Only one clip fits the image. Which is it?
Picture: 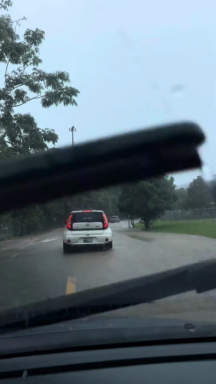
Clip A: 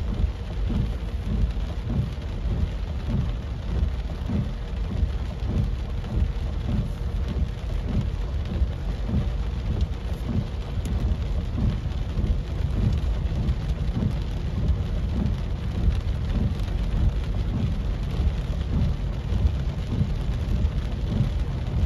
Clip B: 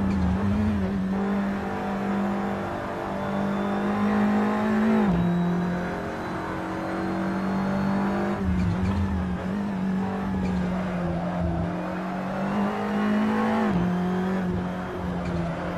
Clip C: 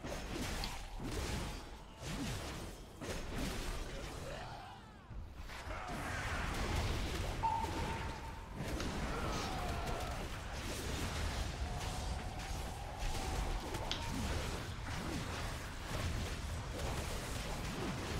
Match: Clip A